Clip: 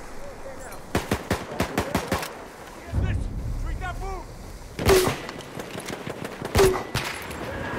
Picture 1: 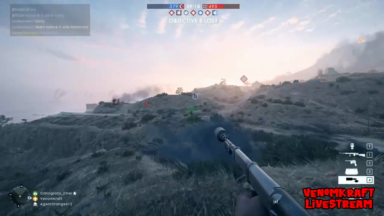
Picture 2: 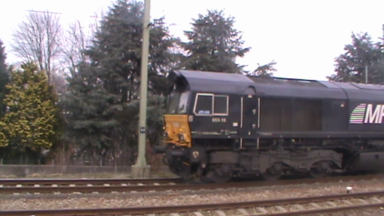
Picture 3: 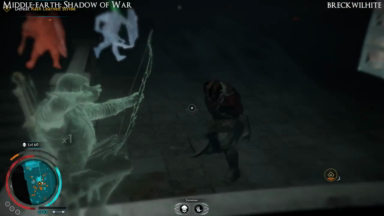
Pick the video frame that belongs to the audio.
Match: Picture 1